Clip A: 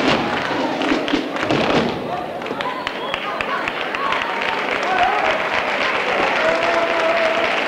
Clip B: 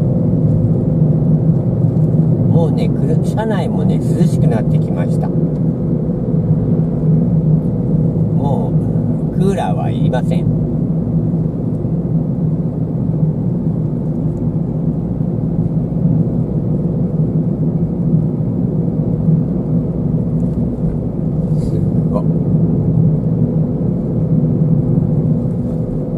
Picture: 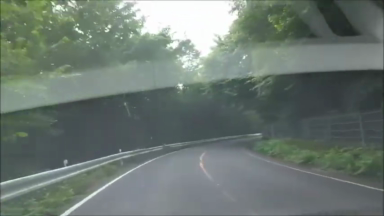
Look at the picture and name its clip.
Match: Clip B